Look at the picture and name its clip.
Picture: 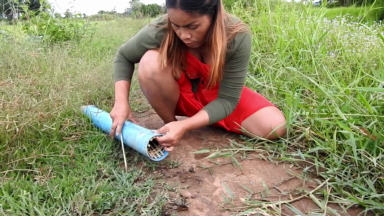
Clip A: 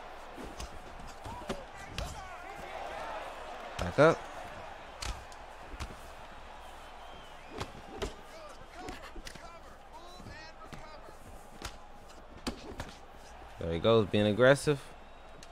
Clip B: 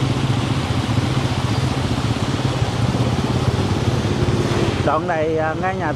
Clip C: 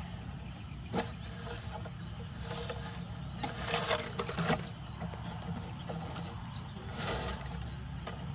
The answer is C